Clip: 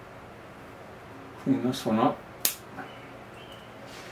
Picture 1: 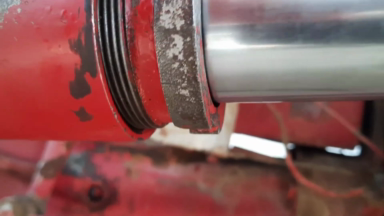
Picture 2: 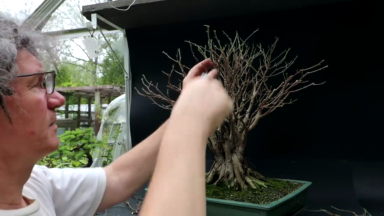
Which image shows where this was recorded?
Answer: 2